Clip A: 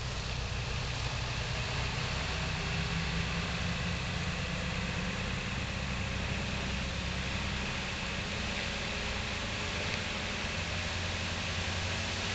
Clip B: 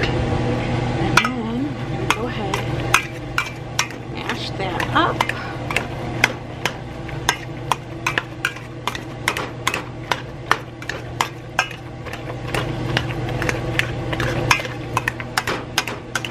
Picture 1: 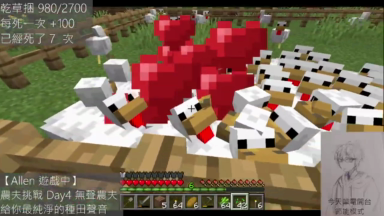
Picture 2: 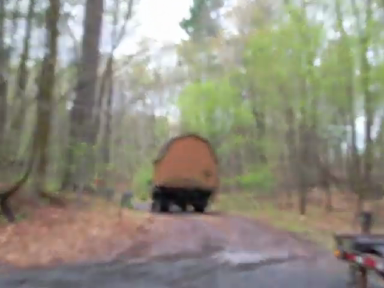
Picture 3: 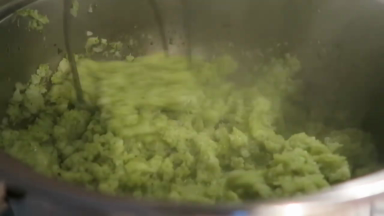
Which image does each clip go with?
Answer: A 2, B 3